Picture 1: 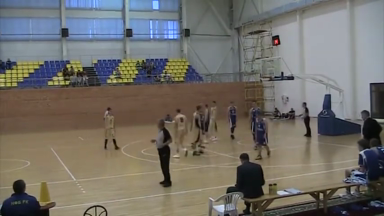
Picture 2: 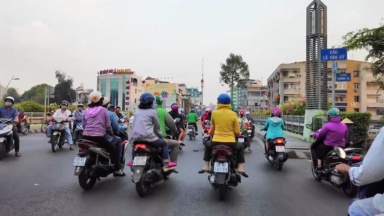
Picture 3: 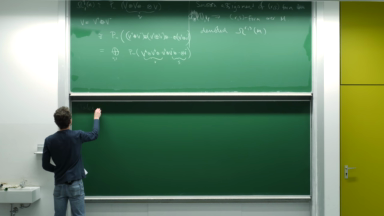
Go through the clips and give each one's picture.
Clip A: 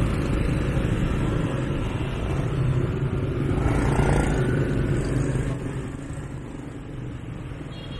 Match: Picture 2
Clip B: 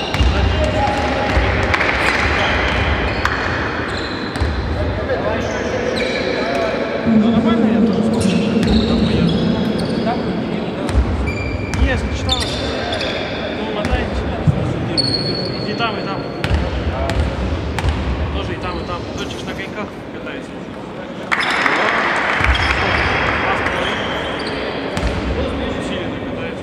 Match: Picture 1